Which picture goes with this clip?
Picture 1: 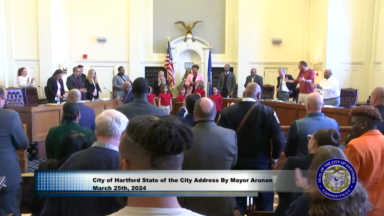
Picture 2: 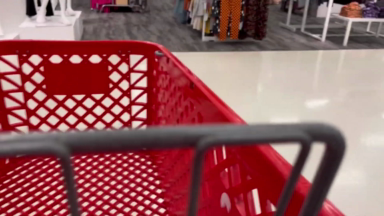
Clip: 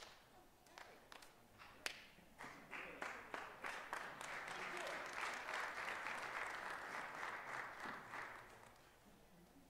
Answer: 1